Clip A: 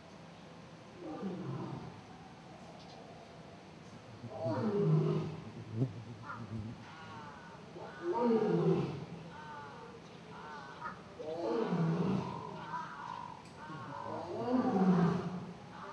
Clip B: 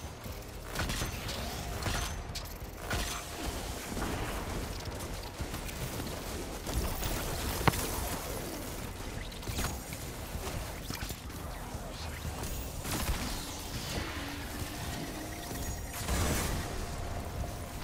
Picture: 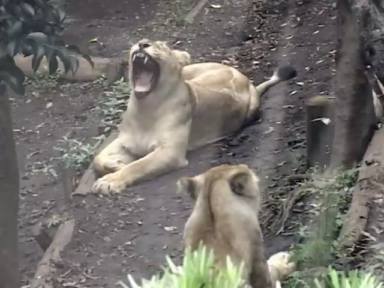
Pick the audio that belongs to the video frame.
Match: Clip A